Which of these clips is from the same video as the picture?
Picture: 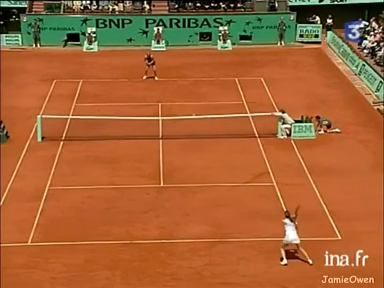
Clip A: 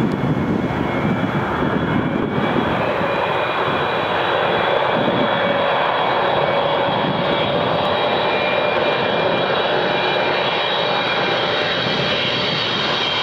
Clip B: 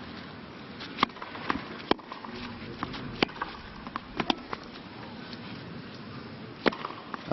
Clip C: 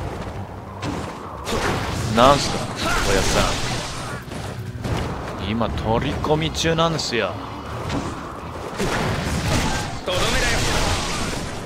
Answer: B